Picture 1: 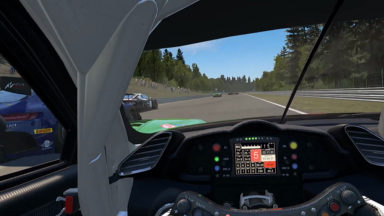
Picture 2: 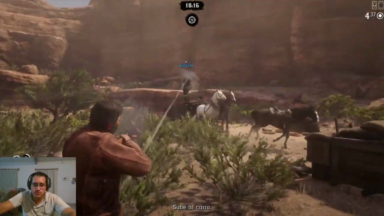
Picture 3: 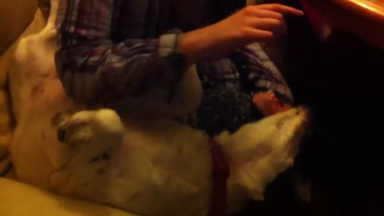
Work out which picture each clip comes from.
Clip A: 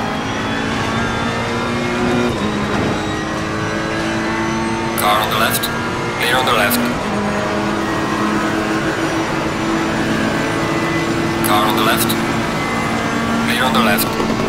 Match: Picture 1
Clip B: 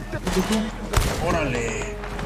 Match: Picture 2